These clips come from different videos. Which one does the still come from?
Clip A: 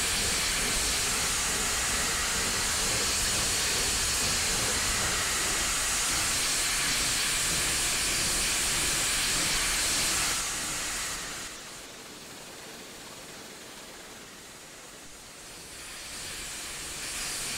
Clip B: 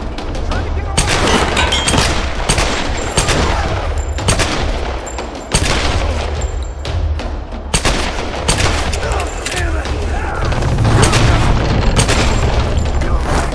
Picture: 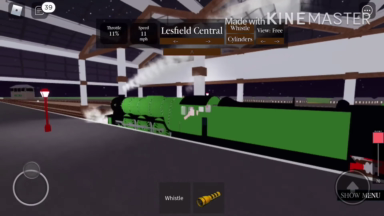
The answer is A